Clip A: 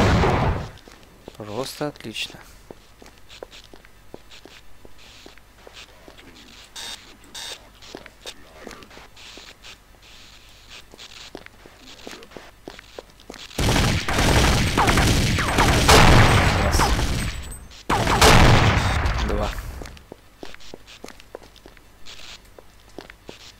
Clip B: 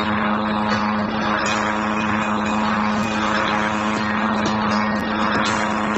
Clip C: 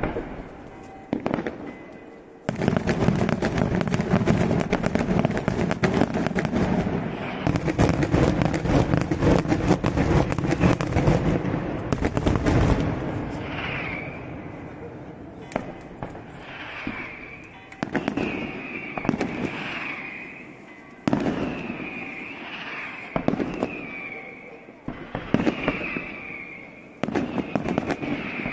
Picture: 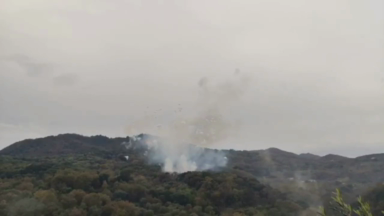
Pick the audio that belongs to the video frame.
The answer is C